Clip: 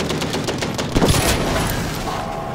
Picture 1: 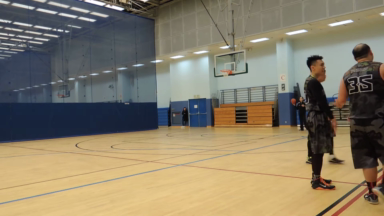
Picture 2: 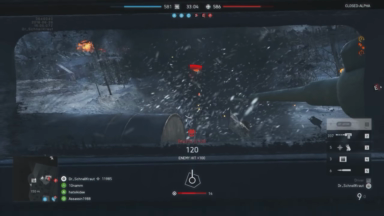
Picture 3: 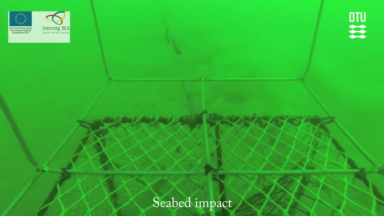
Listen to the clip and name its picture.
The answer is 2